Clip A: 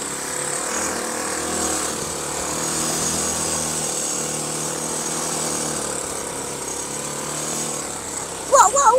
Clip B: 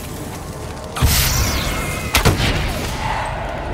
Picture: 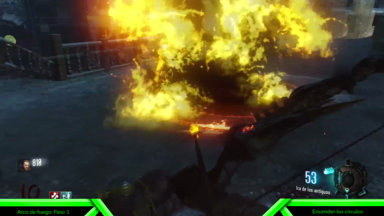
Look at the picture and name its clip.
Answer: B